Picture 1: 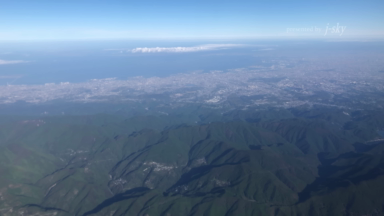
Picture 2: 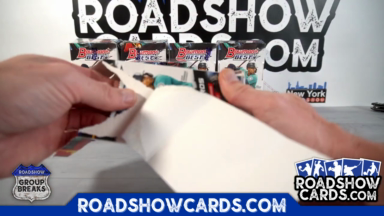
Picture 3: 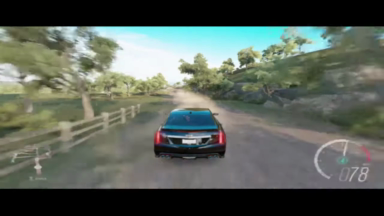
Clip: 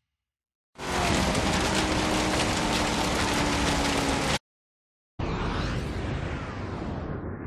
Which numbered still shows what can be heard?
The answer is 3